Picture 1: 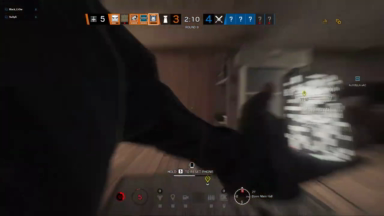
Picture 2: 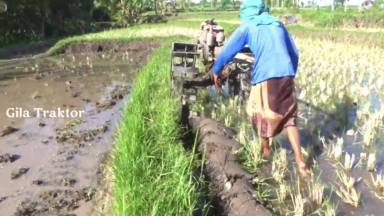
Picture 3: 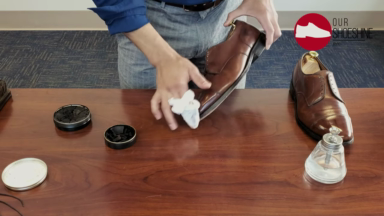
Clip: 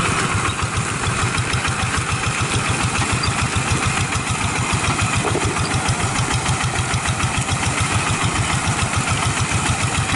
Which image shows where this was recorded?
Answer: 2